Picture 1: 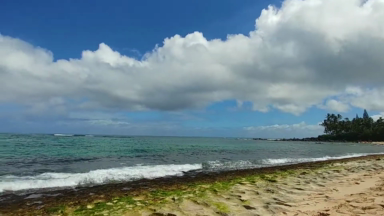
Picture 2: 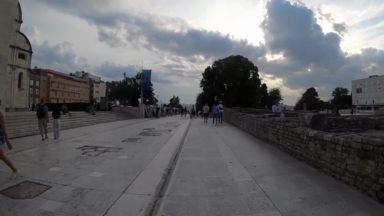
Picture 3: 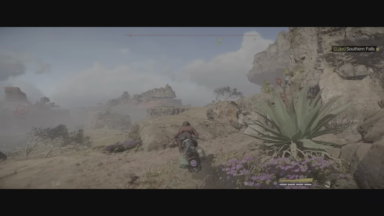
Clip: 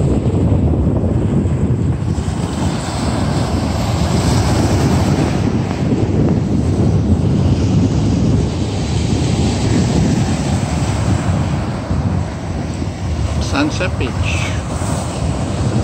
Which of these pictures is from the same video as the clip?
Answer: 1